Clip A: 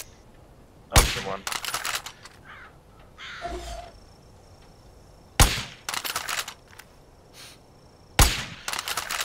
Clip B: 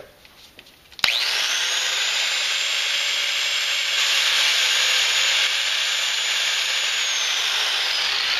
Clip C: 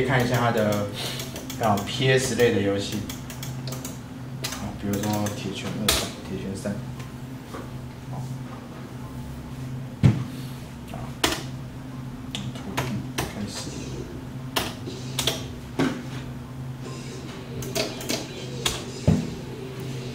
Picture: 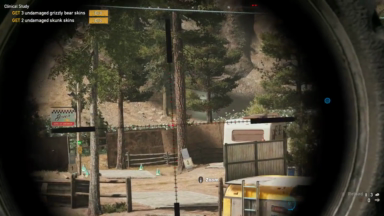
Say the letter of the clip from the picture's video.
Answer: A